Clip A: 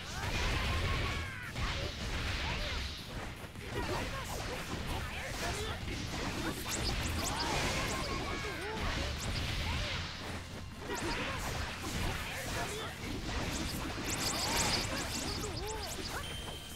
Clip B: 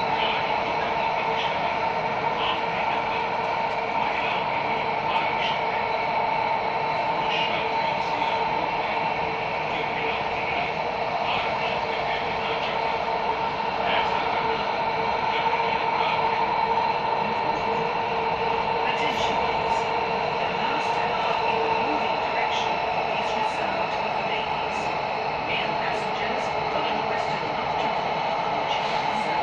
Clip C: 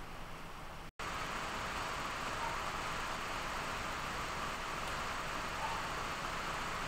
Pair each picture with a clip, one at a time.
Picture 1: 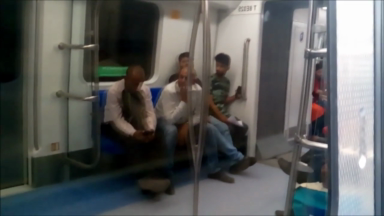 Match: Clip B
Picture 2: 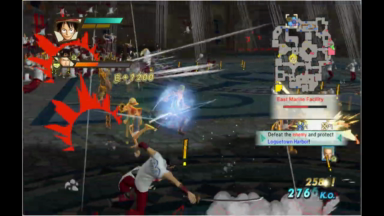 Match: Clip A